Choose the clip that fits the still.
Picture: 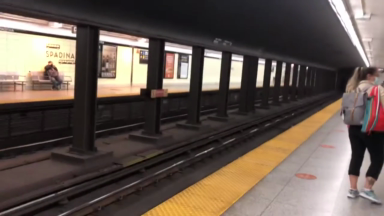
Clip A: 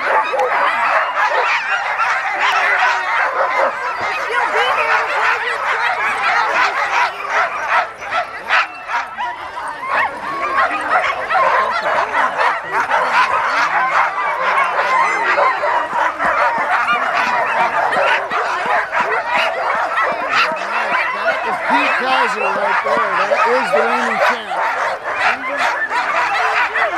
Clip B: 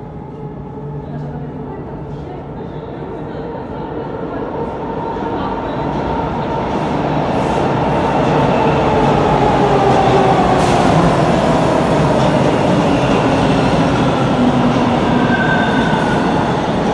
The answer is B